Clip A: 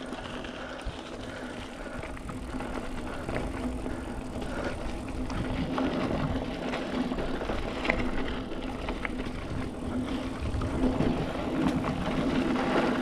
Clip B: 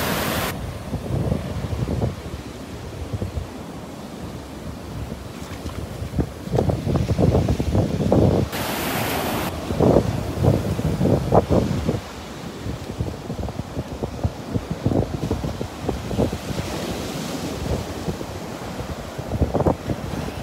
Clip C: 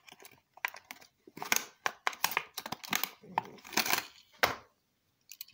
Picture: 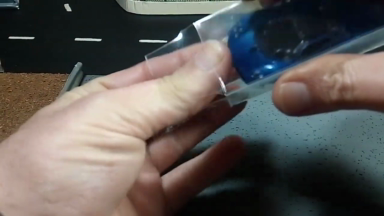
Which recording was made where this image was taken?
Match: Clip C